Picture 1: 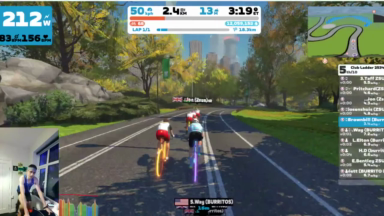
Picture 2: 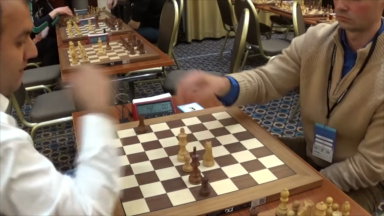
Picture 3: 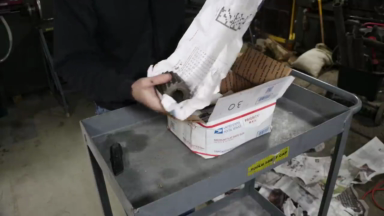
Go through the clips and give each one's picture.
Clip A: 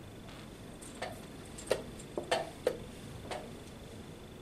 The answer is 2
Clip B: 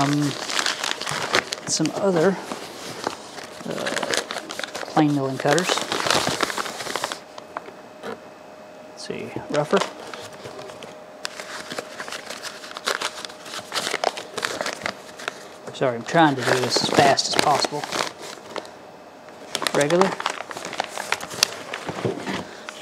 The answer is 3